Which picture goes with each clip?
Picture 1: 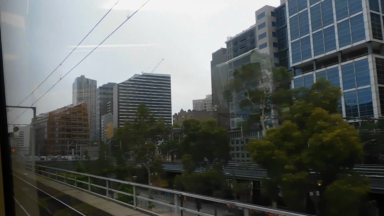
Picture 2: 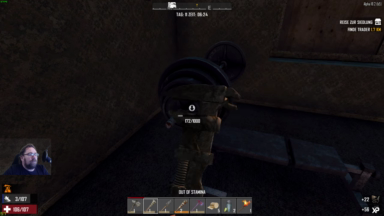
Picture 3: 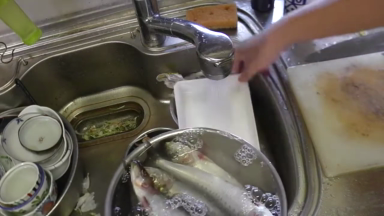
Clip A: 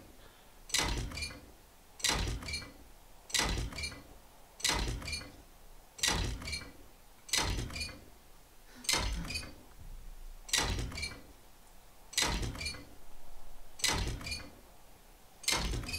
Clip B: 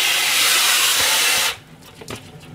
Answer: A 2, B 3